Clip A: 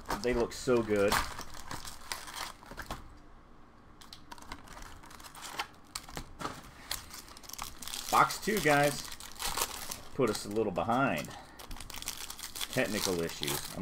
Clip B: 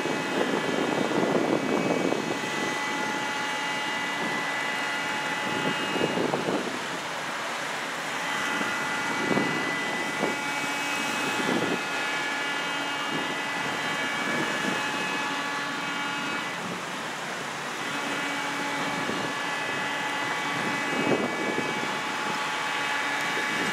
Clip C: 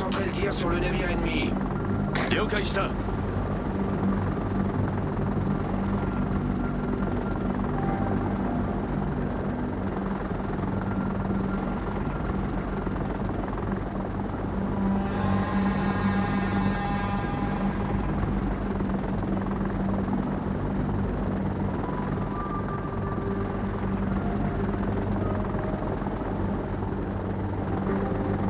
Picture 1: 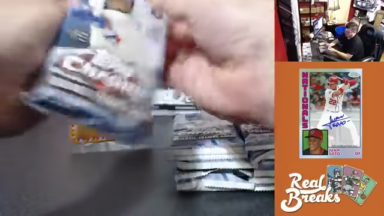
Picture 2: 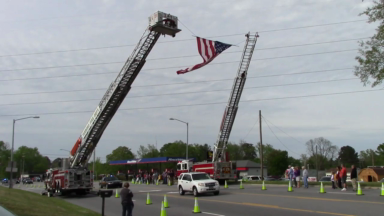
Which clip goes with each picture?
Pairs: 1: A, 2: B